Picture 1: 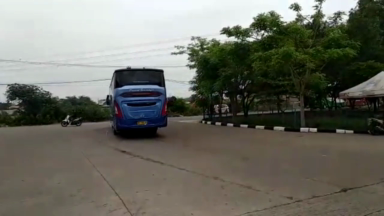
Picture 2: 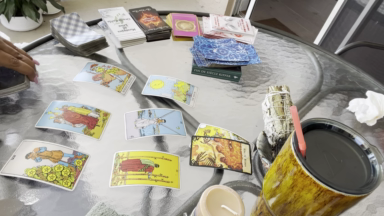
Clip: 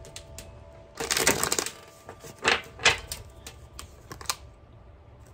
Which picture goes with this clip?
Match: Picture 2